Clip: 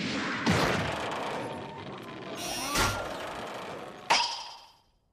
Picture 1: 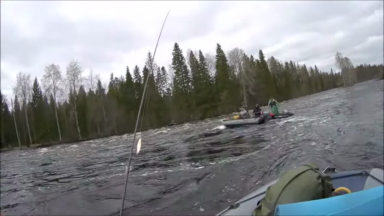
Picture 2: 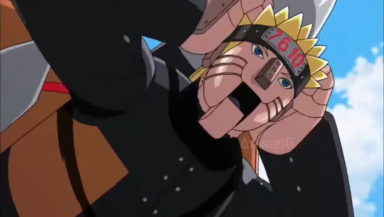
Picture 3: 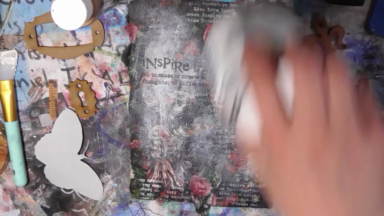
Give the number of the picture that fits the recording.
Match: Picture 2